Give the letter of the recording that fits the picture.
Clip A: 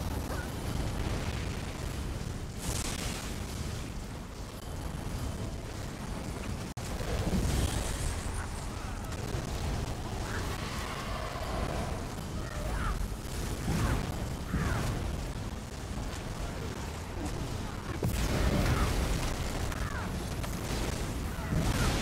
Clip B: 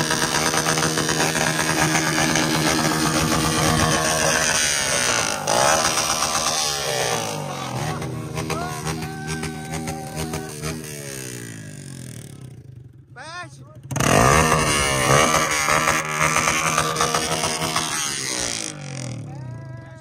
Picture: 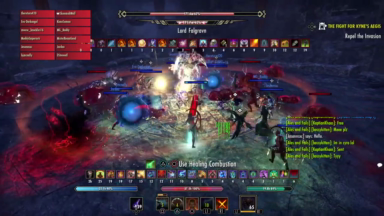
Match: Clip A